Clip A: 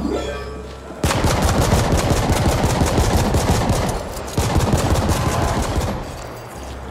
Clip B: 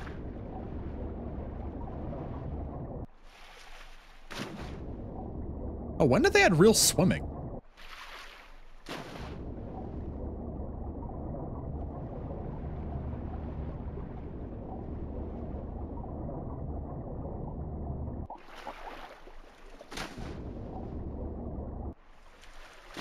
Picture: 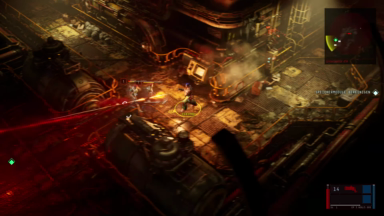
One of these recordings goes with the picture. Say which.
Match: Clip A